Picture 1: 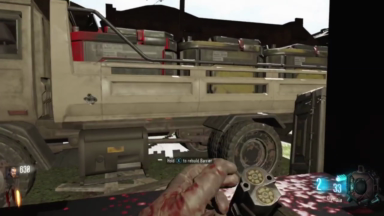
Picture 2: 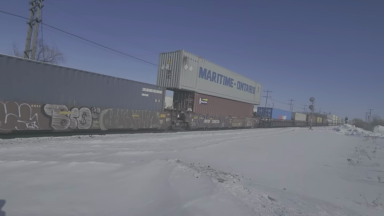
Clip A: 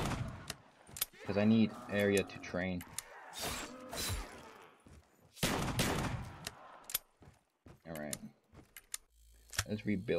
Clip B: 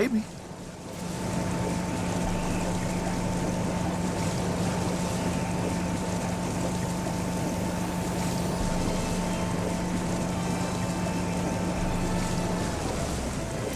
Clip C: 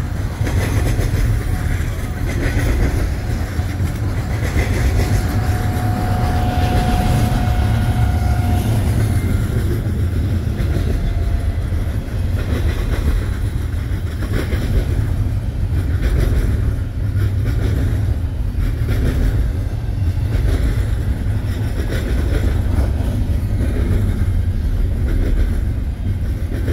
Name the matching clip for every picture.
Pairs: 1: A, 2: C